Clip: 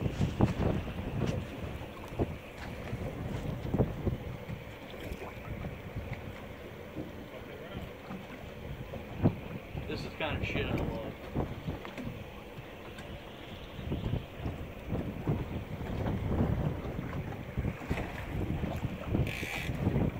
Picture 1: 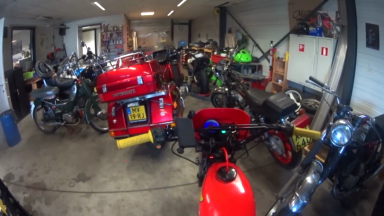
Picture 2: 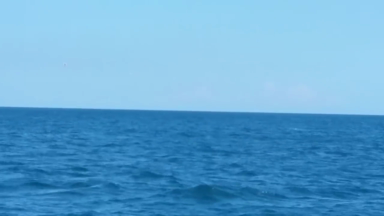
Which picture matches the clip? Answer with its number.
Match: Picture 2